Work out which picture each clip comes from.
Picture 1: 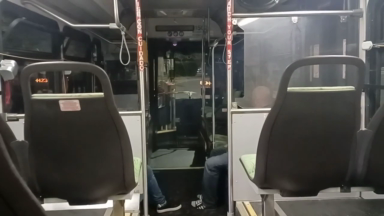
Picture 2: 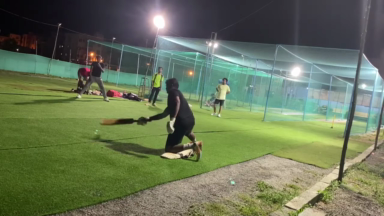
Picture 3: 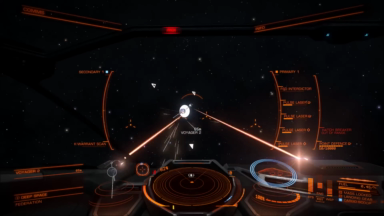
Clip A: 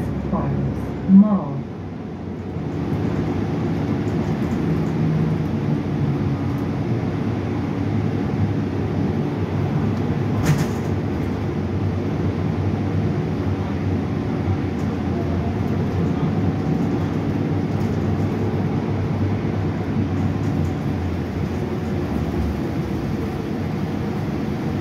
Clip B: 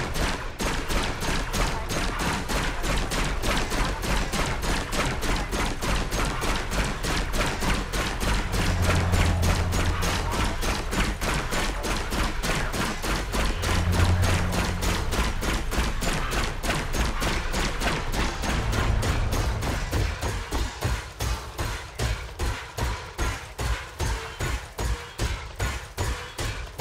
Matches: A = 1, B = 3